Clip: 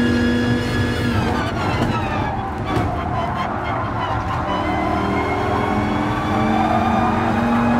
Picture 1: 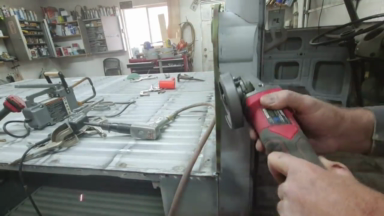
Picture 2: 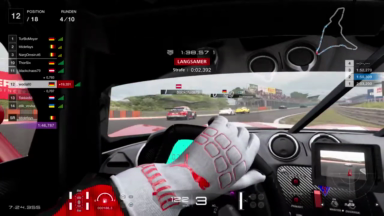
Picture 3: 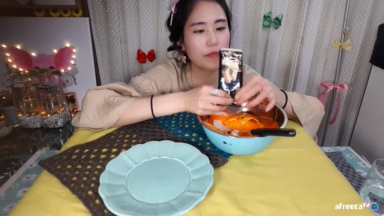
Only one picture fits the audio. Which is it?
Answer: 2